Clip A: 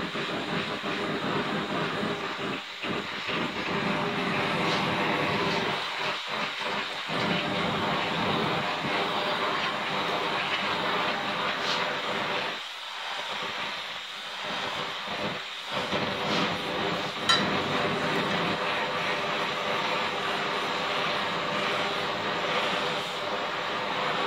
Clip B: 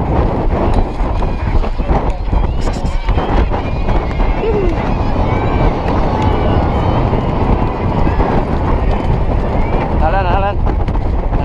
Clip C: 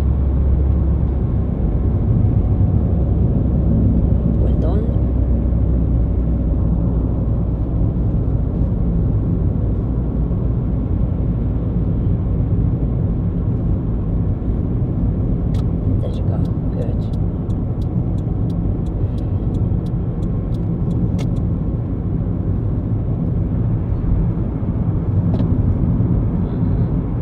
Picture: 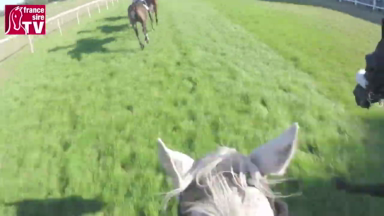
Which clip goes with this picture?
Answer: B